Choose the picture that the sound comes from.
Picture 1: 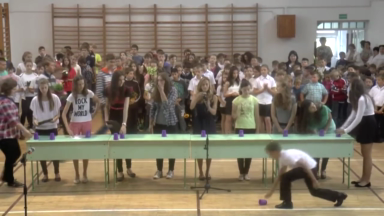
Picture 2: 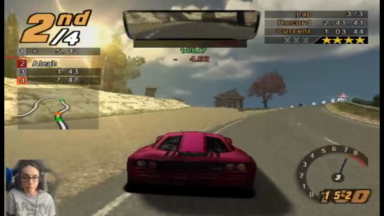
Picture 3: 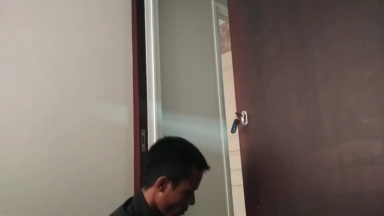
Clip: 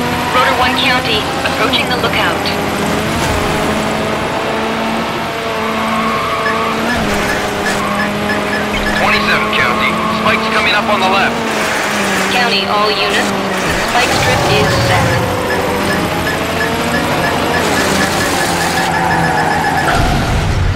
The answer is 2